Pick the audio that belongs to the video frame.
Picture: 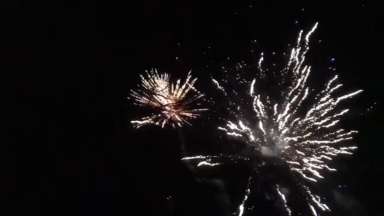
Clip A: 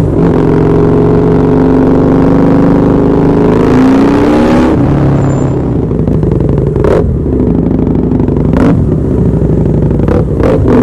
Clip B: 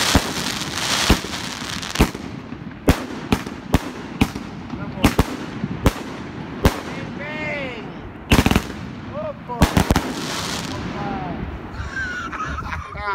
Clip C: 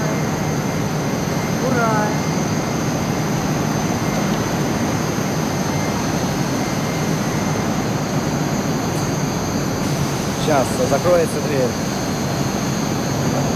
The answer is B